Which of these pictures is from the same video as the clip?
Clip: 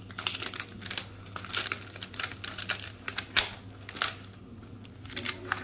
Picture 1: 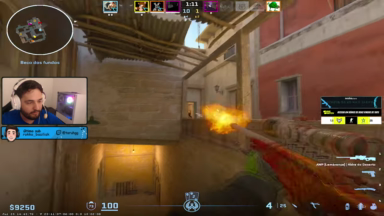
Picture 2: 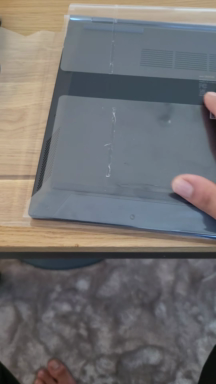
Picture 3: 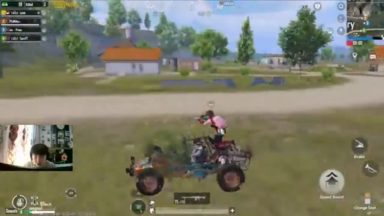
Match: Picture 2